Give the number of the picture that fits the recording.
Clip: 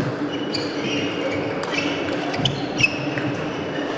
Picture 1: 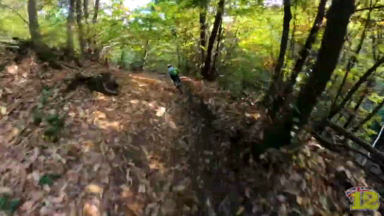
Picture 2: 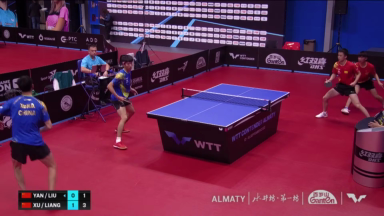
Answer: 2